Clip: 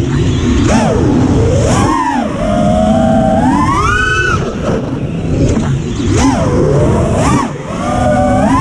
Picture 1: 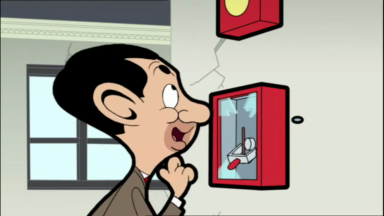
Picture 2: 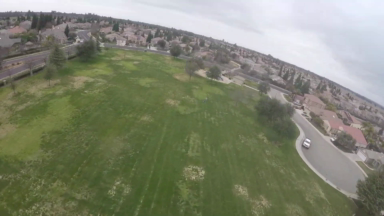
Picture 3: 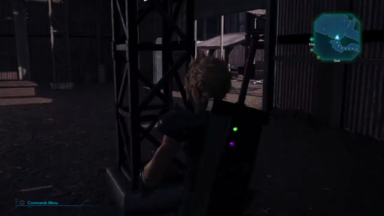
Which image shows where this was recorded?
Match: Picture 2